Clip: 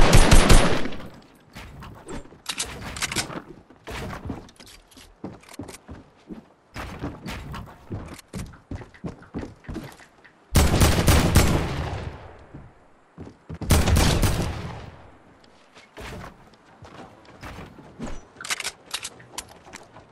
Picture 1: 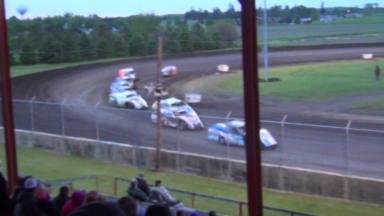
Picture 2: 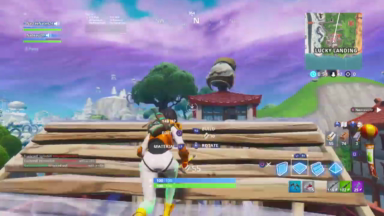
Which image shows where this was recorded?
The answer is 2